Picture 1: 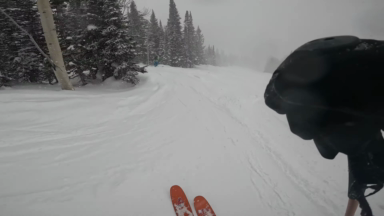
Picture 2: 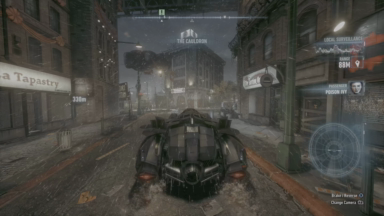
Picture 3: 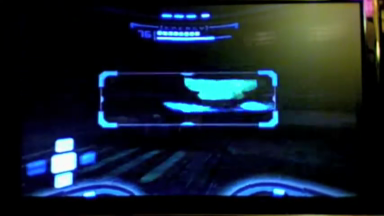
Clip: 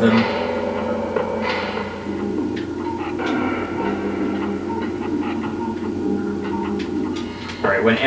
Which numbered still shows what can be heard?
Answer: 3